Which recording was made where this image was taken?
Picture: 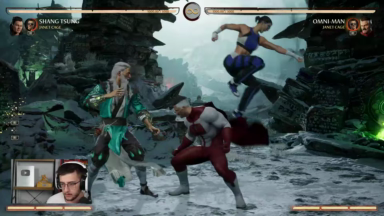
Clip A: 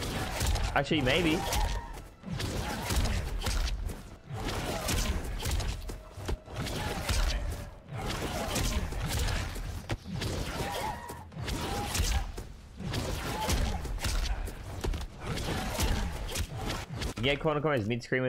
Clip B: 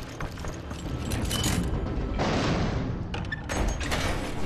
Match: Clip A